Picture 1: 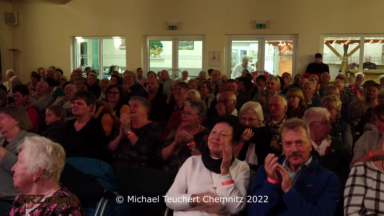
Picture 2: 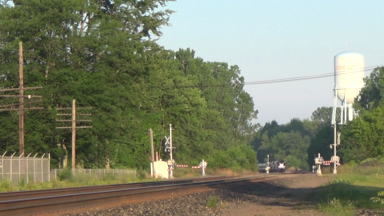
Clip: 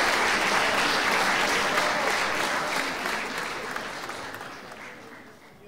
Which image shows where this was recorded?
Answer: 1